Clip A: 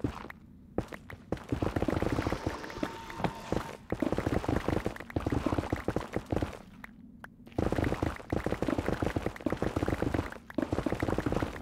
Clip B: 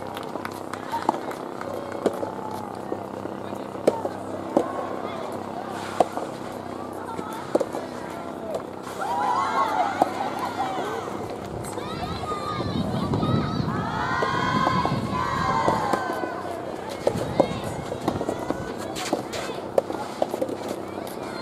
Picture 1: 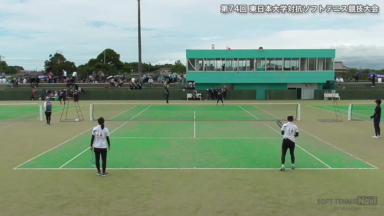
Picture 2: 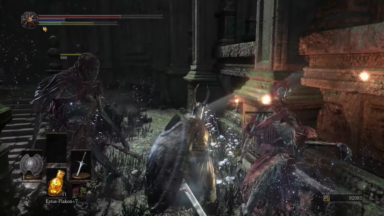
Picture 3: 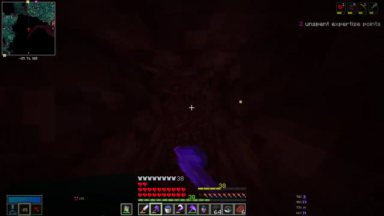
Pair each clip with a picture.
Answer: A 3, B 1